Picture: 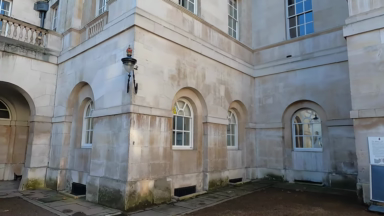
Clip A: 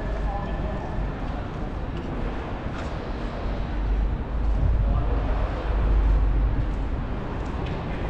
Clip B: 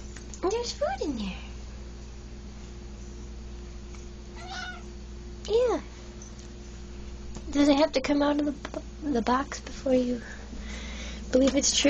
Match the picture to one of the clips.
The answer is A